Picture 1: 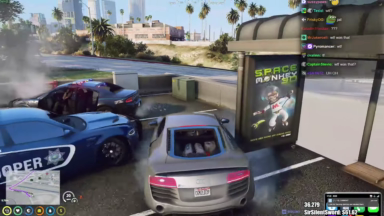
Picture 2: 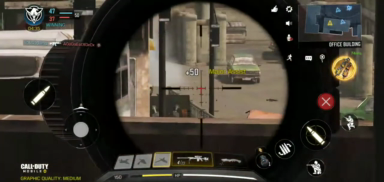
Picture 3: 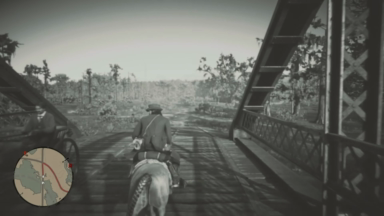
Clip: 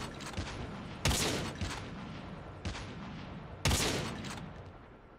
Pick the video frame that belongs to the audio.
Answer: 2